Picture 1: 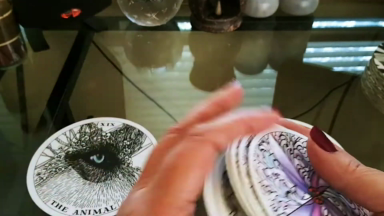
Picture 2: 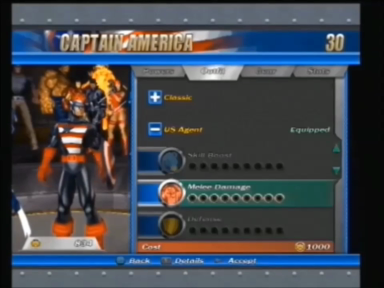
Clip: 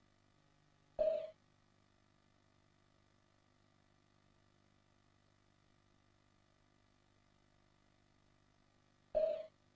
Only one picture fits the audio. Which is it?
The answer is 2